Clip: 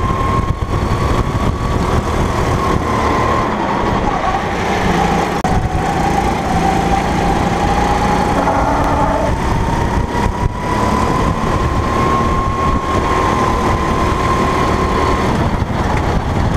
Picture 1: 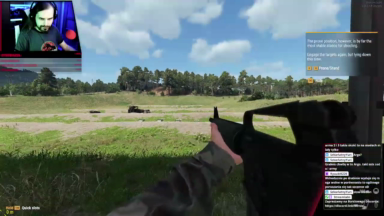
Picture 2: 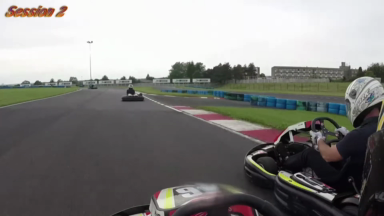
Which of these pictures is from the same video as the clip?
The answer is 2